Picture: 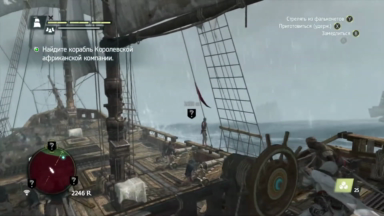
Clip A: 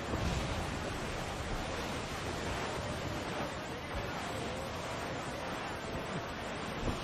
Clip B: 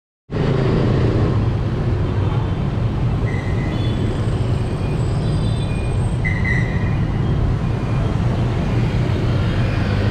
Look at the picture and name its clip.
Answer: A